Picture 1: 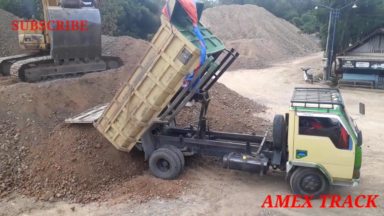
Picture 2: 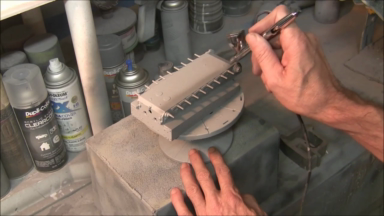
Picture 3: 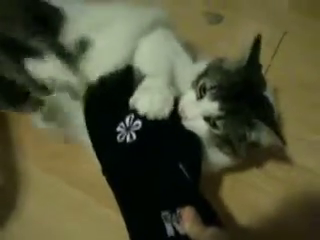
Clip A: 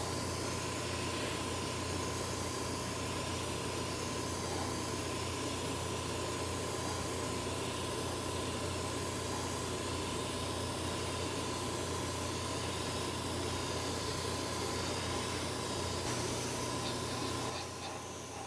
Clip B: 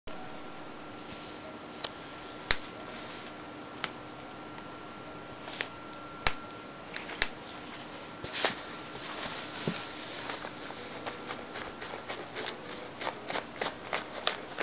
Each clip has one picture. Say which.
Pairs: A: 2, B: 3